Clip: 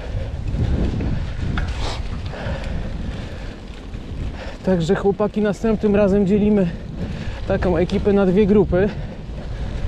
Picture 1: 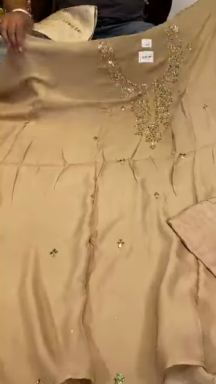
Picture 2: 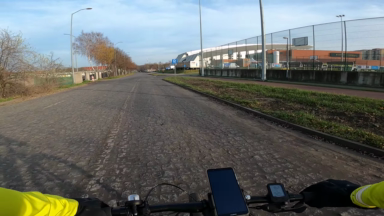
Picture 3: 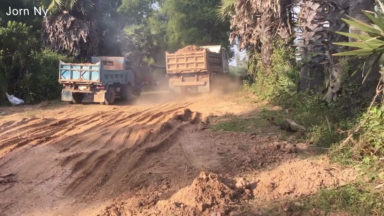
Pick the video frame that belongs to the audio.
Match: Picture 2